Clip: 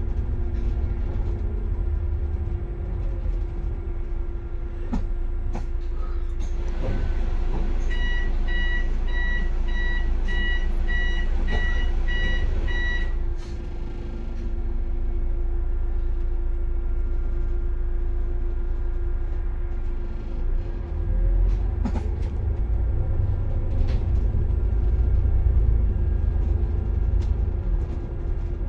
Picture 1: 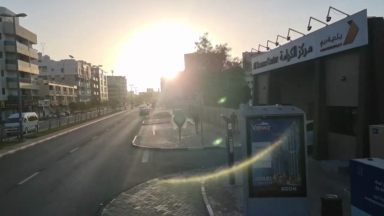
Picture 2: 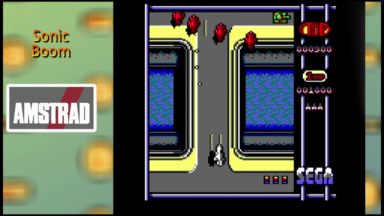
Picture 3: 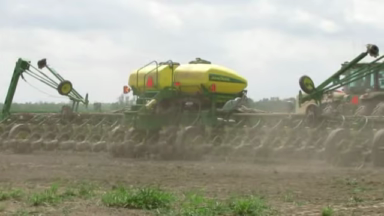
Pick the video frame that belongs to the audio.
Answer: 1